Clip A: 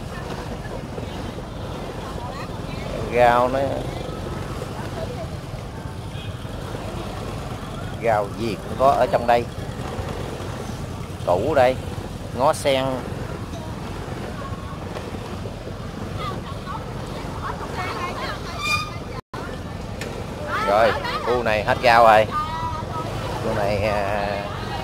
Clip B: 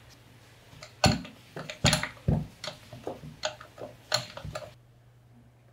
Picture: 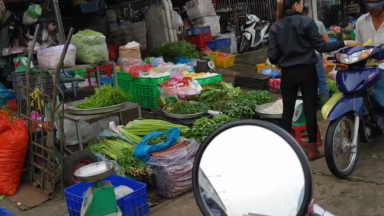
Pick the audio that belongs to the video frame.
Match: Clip A